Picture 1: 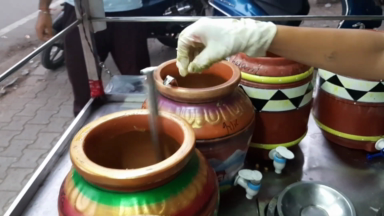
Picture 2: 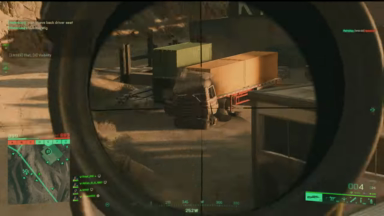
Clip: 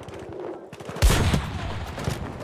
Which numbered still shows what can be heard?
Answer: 2